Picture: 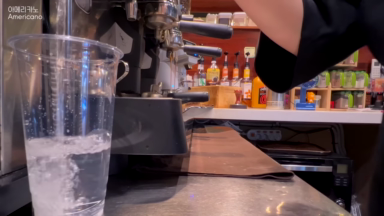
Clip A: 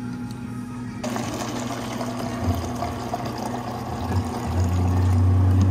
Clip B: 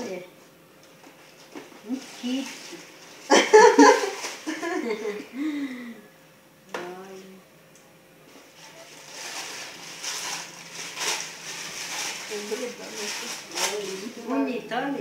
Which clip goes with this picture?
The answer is A